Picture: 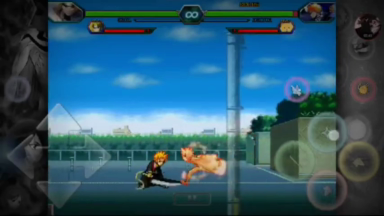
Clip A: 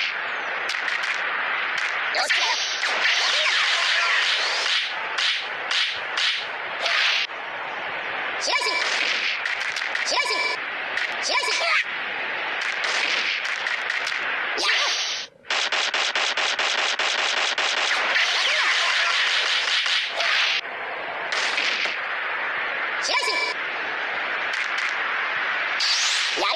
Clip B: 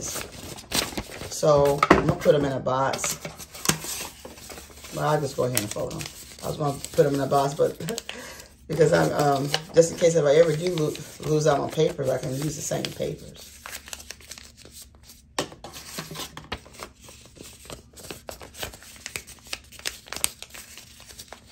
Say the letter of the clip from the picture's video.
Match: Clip A